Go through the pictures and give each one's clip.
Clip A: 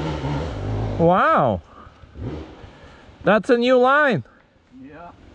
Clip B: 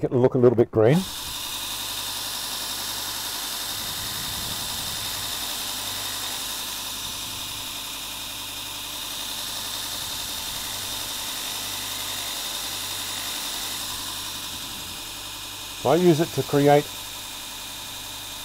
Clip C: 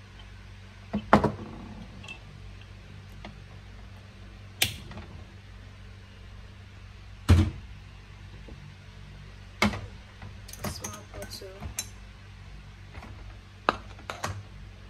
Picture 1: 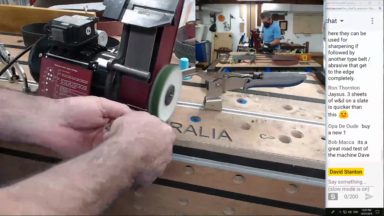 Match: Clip B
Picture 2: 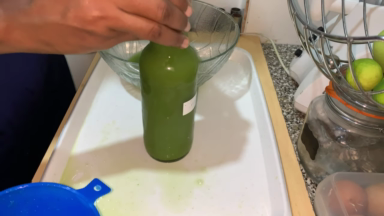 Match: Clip C